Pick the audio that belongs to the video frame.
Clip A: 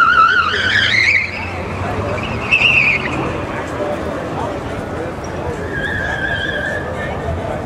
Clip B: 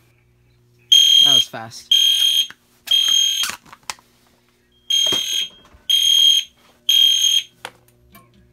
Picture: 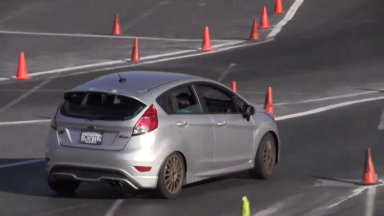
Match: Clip A